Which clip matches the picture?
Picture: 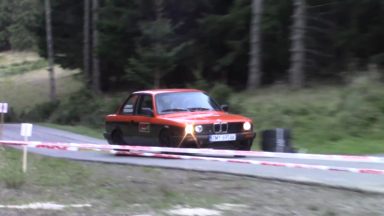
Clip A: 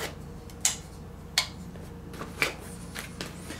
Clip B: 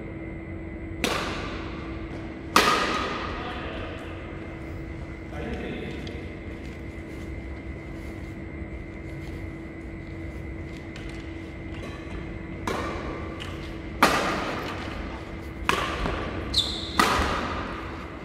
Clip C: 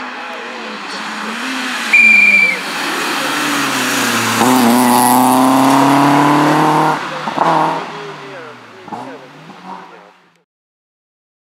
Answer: C